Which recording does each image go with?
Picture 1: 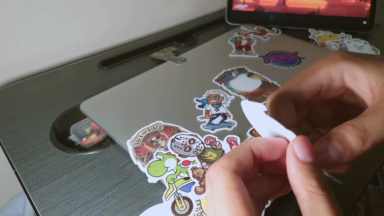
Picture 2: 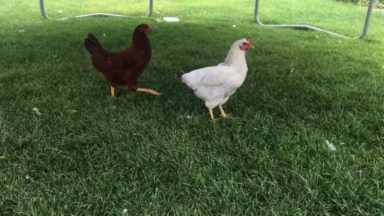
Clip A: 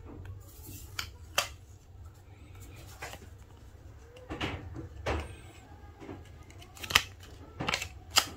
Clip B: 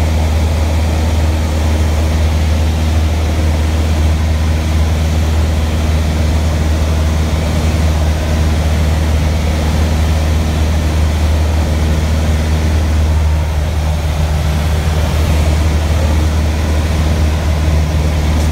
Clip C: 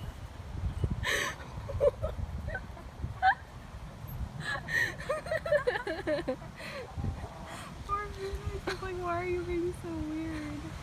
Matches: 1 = A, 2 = C